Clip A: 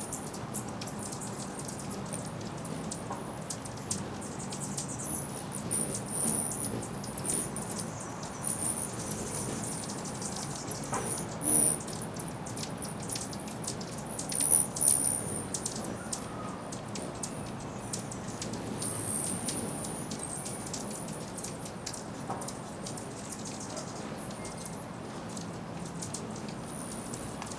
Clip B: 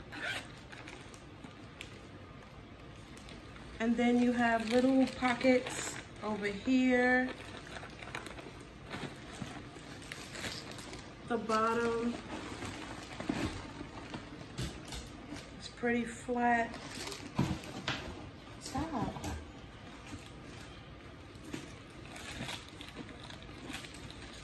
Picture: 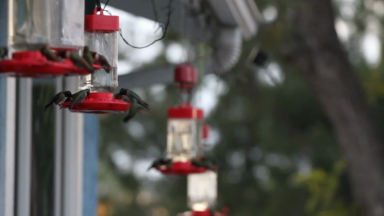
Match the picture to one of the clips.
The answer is A